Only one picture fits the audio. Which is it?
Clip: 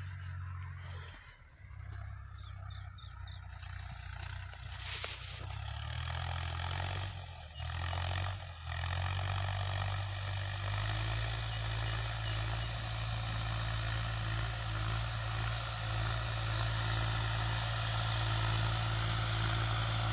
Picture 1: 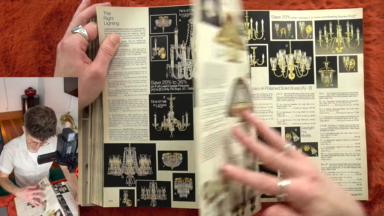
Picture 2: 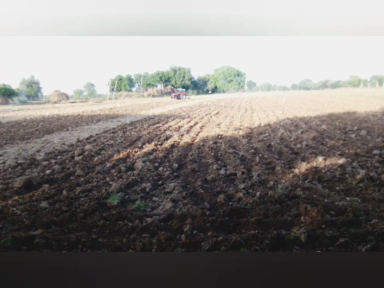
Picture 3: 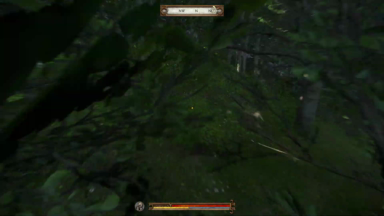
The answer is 2